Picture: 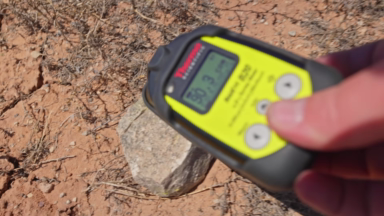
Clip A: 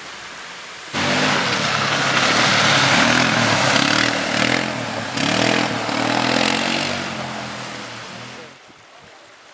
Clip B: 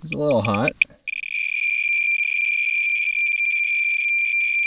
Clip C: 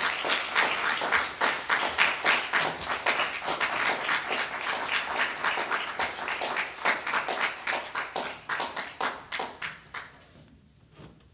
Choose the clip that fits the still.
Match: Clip B